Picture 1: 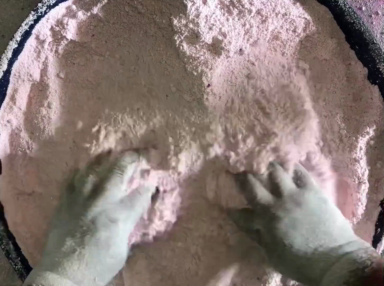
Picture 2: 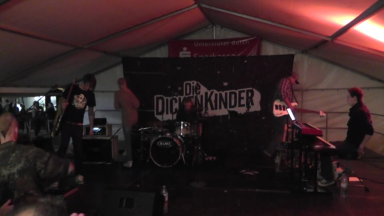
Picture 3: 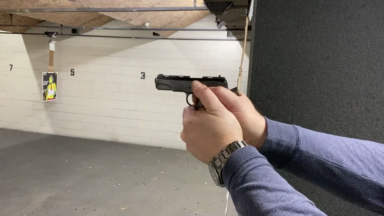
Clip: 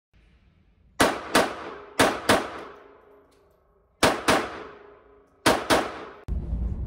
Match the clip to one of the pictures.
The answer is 3